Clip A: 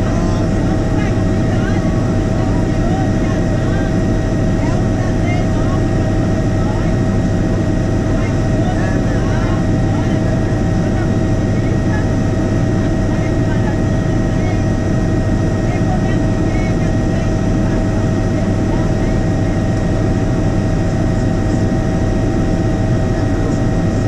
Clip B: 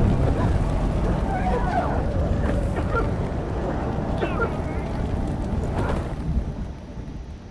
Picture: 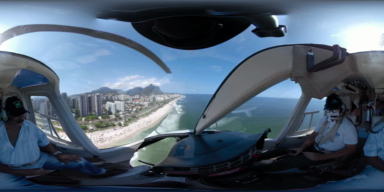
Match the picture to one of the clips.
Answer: A